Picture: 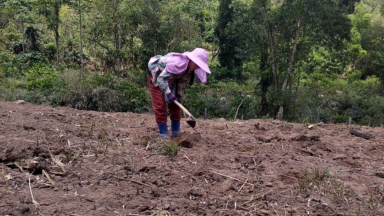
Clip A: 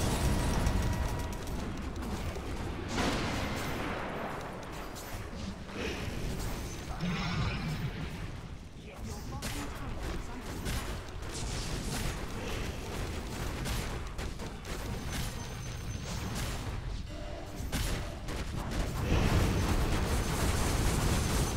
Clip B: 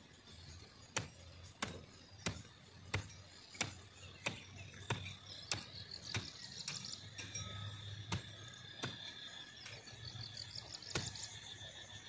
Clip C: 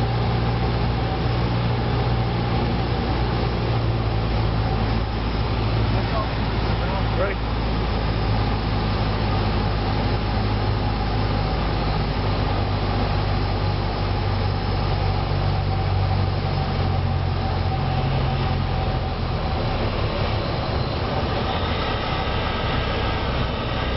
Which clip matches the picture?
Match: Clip B